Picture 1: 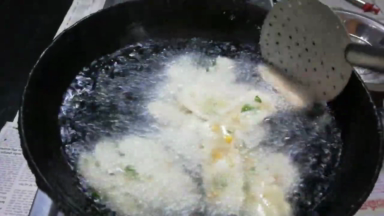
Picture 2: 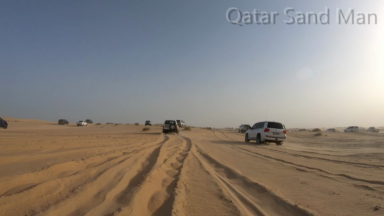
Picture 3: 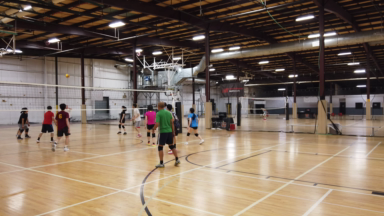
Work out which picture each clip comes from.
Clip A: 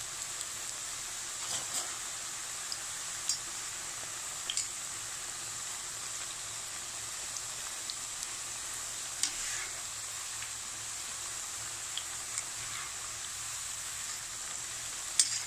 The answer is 1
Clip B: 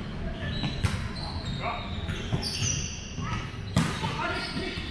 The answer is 3